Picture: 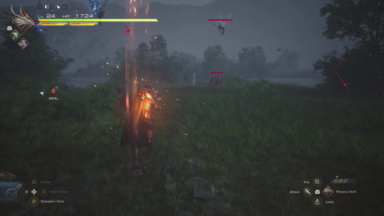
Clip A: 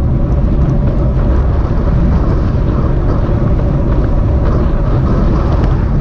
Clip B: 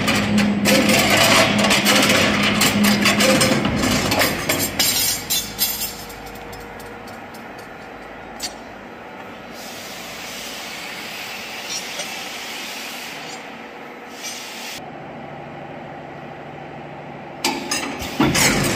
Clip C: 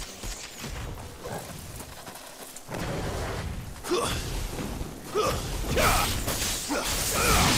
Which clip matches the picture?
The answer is C